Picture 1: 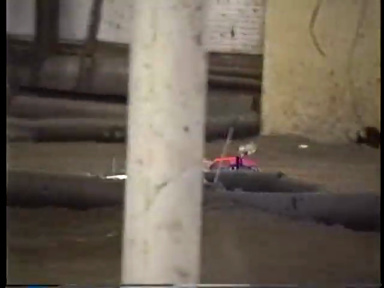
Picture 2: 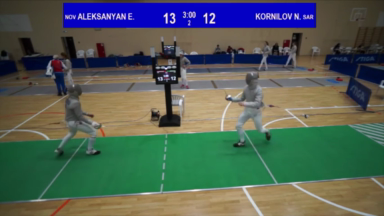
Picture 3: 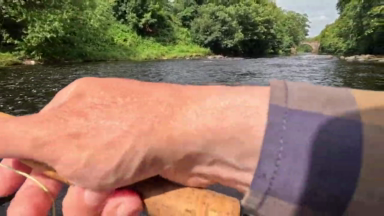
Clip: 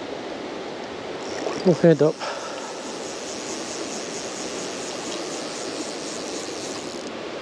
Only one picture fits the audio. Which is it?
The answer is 3